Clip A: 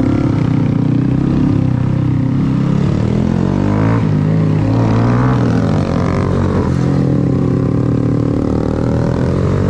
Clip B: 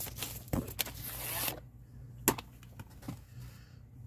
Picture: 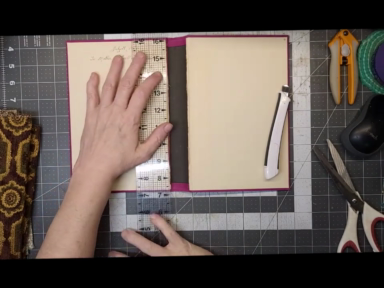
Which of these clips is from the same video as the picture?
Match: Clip B